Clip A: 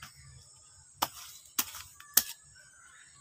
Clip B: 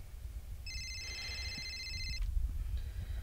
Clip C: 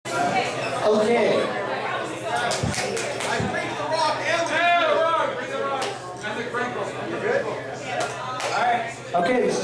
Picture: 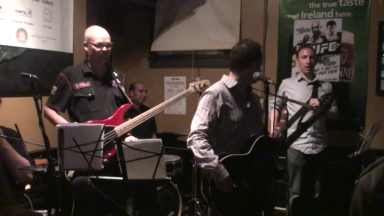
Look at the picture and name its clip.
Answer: C